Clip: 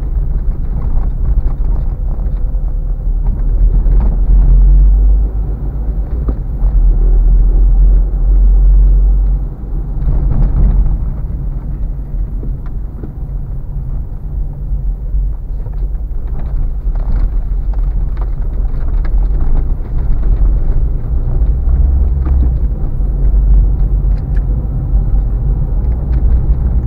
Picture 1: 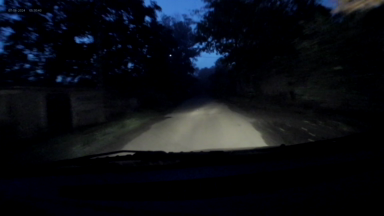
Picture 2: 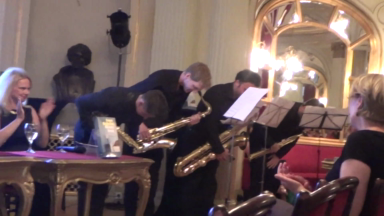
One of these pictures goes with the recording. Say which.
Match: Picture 1